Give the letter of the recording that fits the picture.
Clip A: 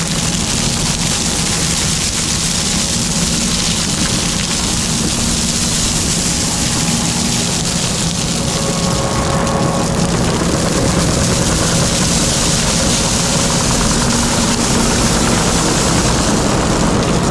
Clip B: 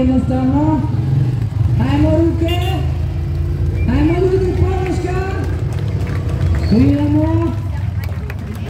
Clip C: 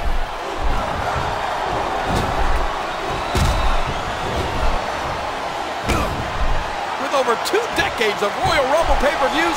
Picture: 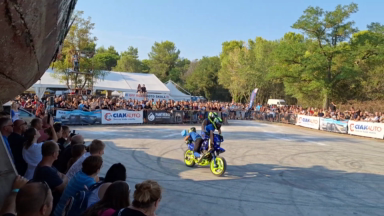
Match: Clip B